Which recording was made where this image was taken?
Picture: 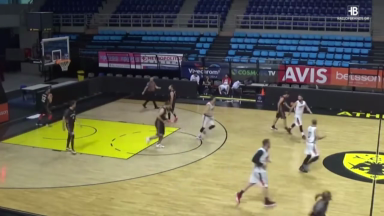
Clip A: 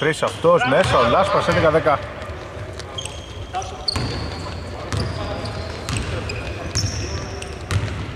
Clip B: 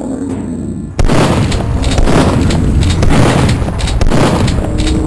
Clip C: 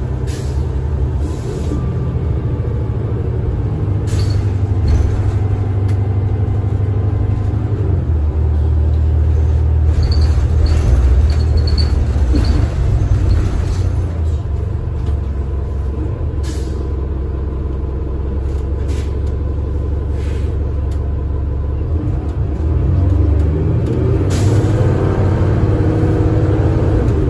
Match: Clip A